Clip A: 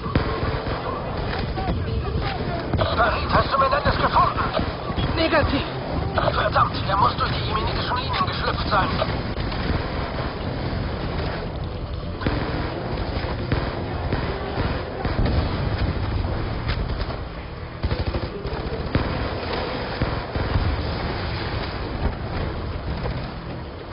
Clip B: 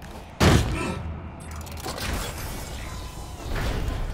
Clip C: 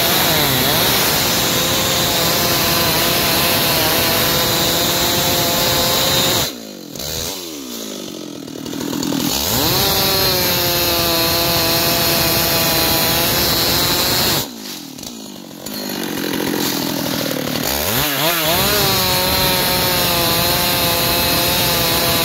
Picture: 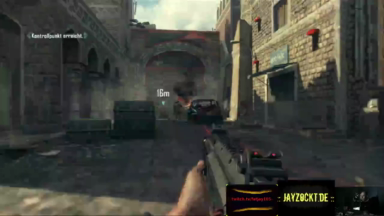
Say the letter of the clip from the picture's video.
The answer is A